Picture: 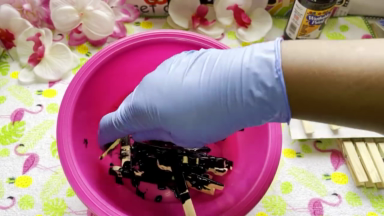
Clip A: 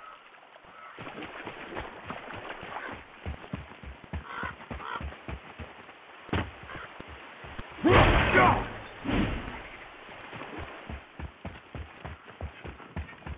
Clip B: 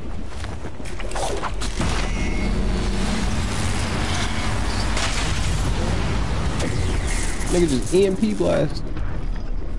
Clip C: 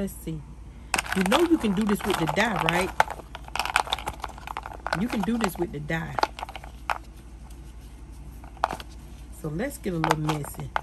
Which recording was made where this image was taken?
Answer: C